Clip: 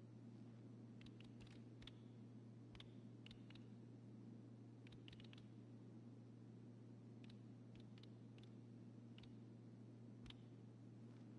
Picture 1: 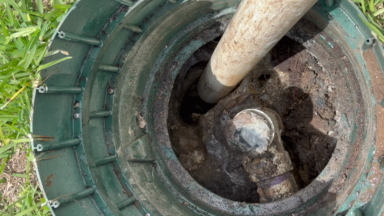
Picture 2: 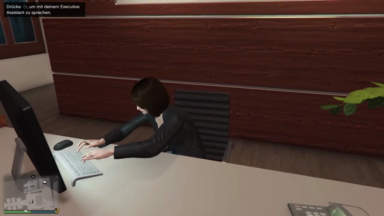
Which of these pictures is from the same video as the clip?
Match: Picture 2